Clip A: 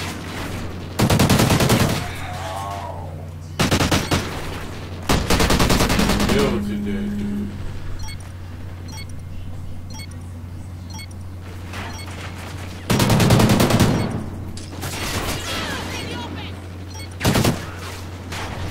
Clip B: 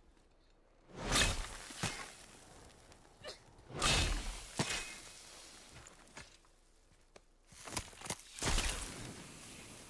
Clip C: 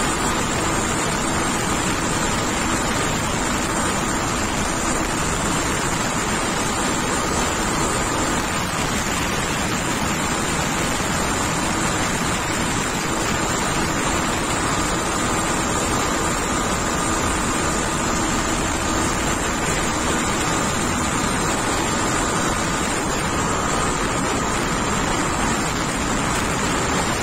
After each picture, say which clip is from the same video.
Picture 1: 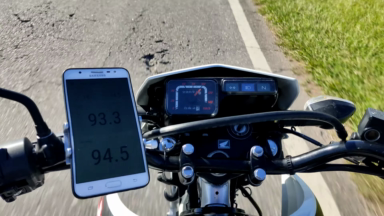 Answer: C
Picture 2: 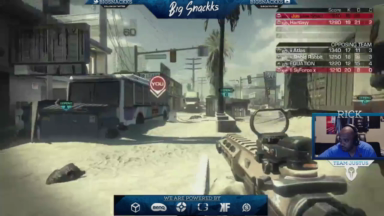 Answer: A